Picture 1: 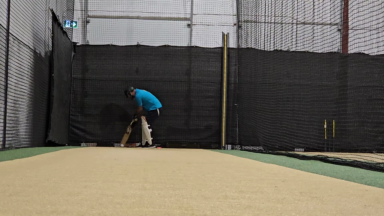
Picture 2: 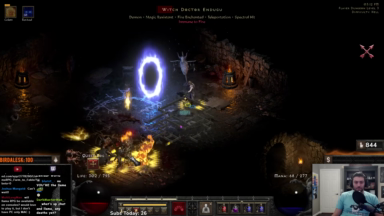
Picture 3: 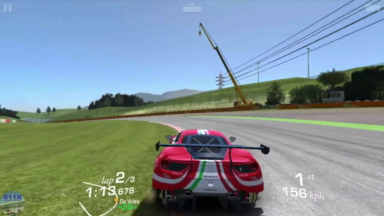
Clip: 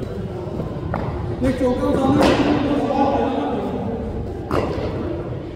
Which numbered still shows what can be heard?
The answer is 1